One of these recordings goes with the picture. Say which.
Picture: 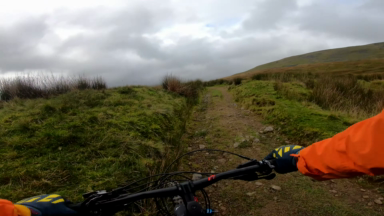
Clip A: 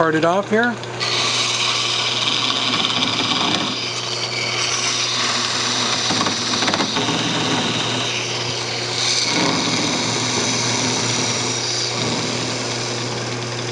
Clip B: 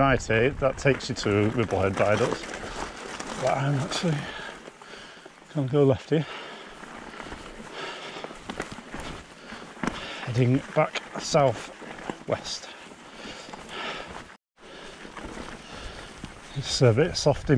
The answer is B